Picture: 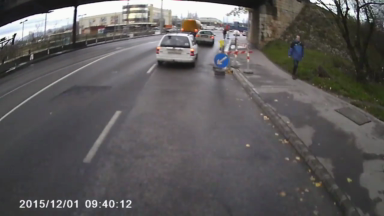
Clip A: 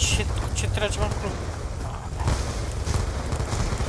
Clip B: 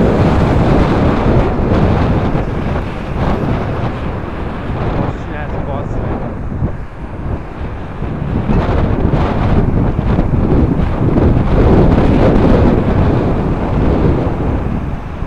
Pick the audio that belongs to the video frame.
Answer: B